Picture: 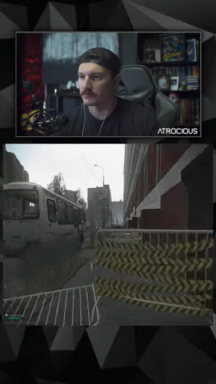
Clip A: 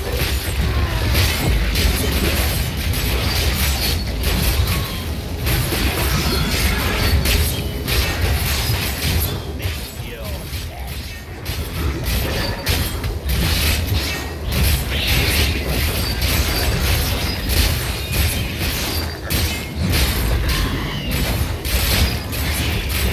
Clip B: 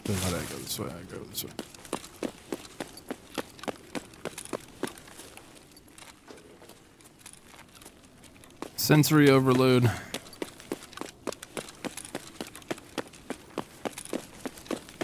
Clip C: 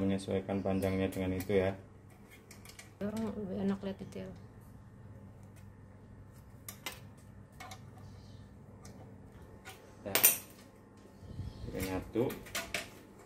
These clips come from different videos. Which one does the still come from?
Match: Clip B